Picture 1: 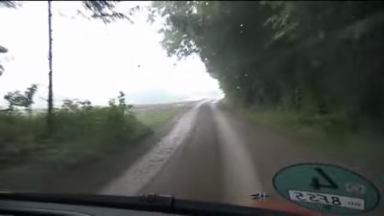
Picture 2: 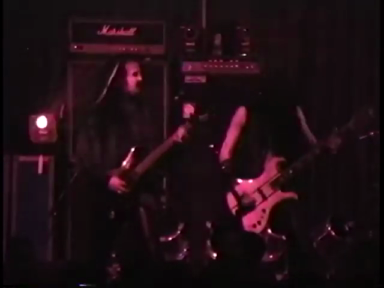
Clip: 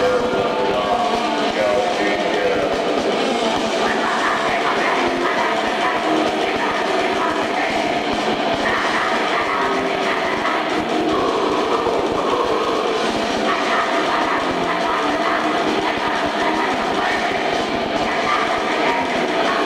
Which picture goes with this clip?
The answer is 2